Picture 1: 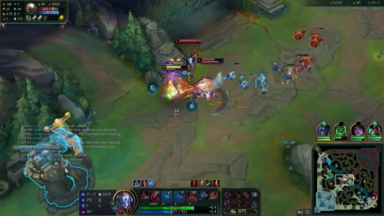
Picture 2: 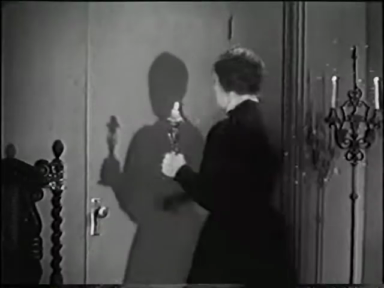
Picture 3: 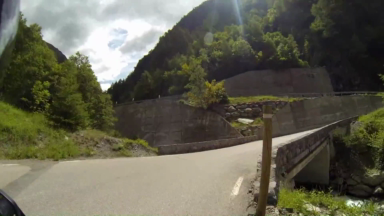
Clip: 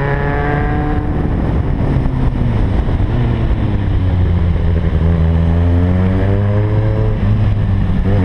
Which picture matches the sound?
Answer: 3